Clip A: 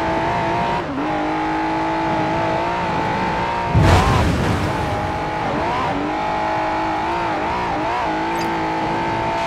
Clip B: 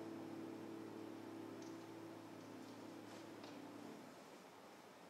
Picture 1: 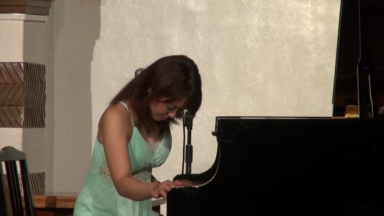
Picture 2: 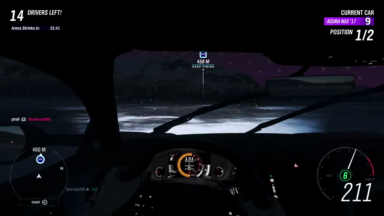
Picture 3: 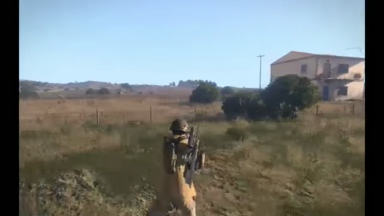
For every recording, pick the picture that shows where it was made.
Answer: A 2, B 1